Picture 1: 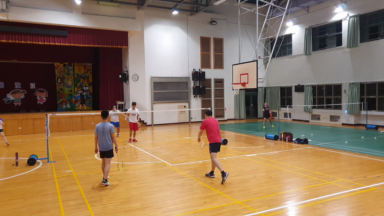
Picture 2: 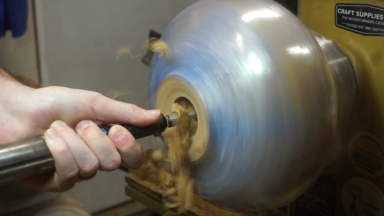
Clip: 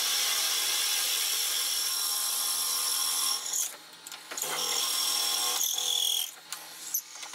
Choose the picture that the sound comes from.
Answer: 2